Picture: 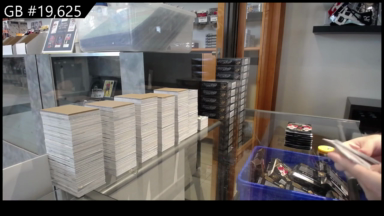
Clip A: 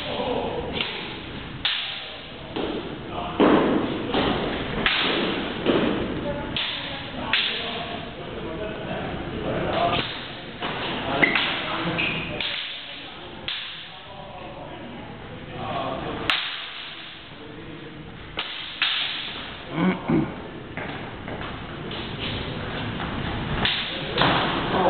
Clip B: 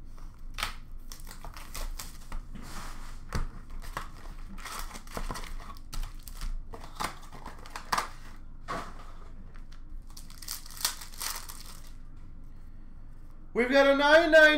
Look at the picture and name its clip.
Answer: B